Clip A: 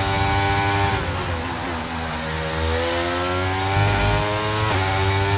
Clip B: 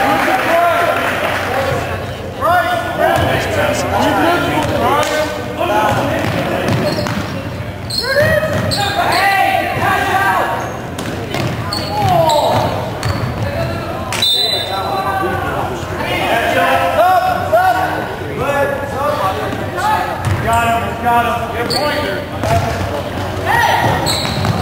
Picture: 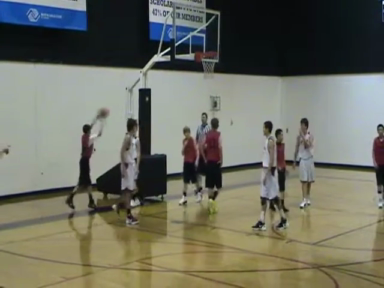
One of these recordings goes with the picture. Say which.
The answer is B